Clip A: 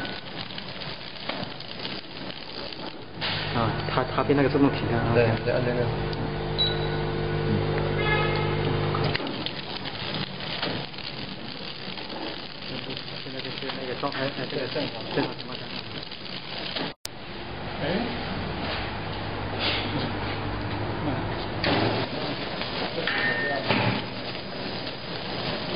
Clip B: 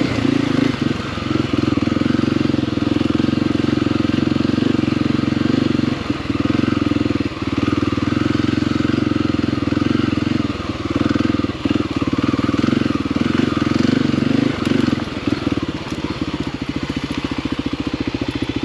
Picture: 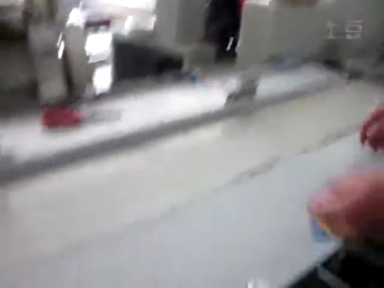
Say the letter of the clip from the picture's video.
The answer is A